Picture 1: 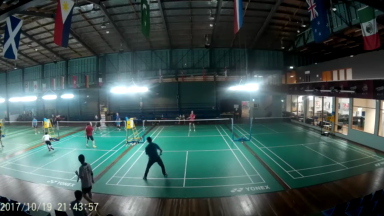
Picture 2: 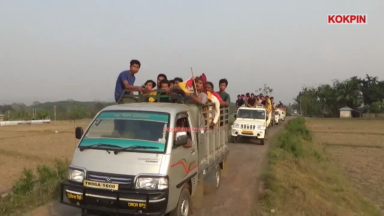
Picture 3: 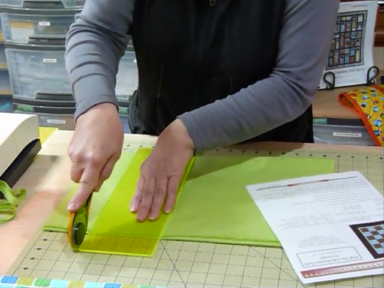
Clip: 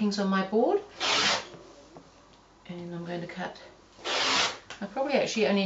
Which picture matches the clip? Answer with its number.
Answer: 3